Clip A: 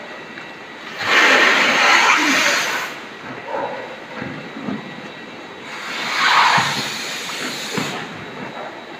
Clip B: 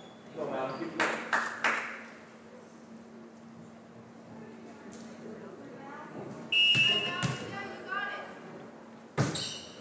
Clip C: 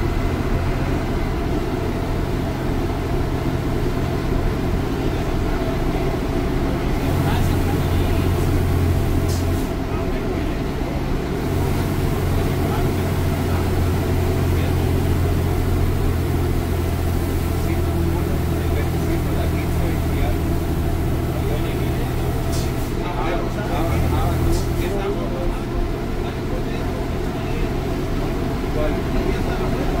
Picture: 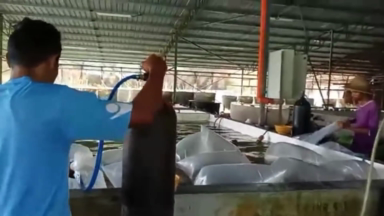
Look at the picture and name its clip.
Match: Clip A